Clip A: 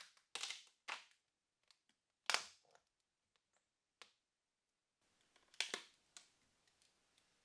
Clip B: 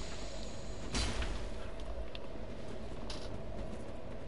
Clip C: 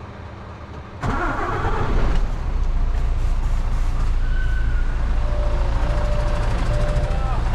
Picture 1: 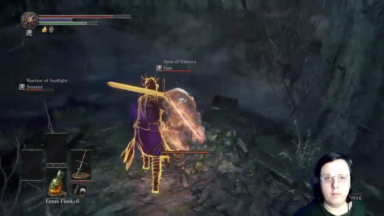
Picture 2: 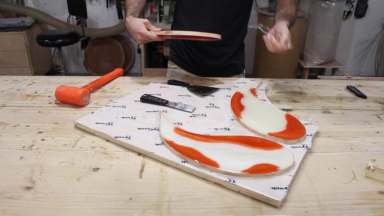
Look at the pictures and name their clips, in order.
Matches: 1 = B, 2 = A